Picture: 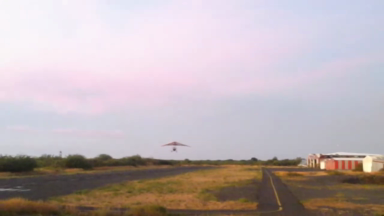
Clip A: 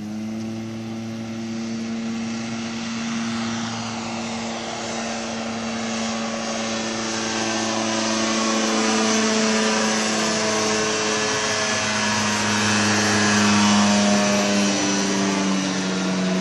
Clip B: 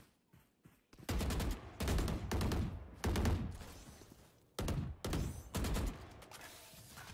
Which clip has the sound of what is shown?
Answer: A